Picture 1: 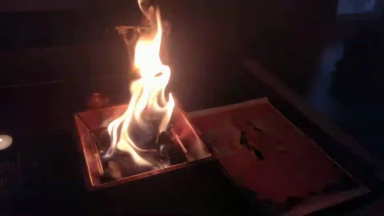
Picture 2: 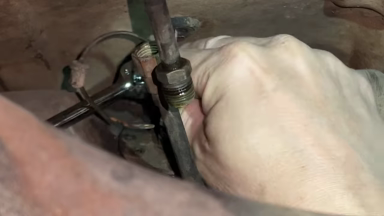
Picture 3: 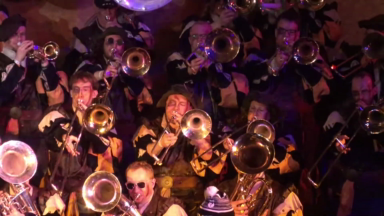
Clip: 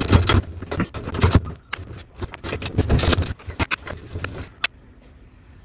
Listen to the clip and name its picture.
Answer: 2